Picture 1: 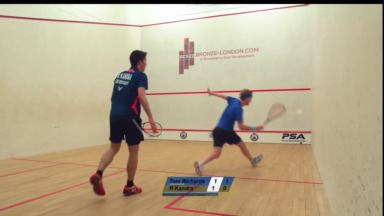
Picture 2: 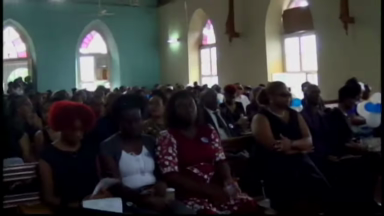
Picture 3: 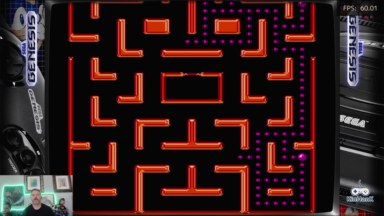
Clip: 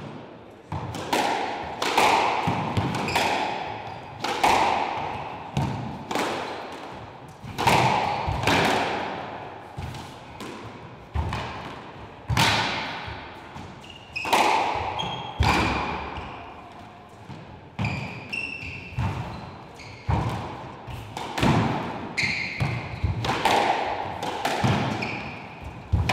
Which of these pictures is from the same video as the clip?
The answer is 1